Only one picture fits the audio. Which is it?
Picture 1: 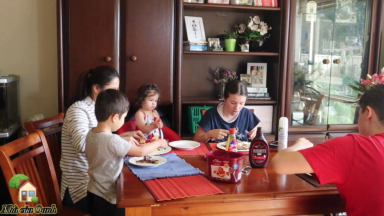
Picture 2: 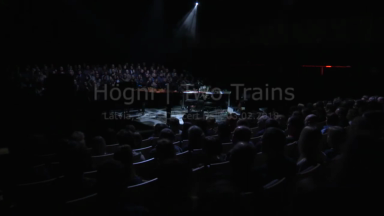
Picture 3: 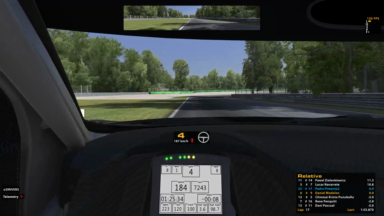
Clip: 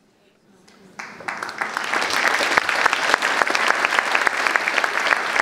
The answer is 2